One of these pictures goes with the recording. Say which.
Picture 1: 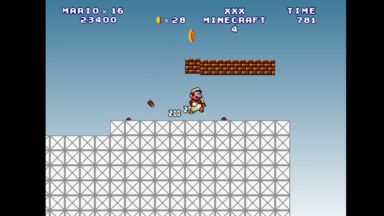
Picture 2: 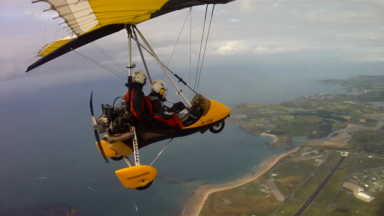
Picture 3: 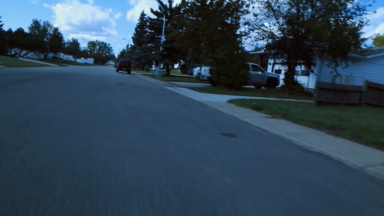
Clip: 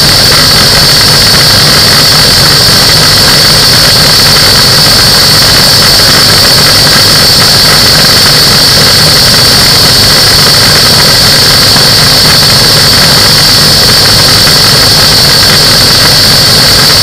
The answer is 2